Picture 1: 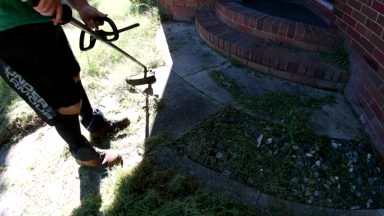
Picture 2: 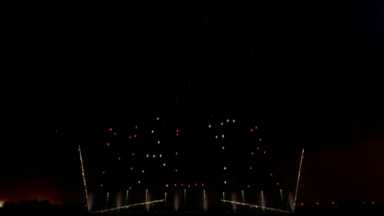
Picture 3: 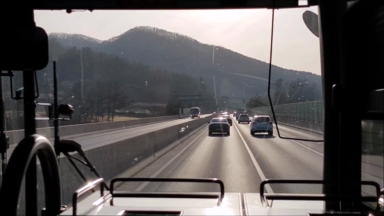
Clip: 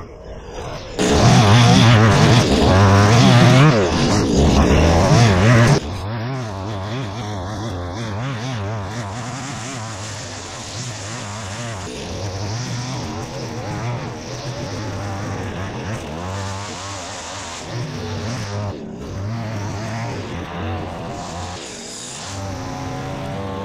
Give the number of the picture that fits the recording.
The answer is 1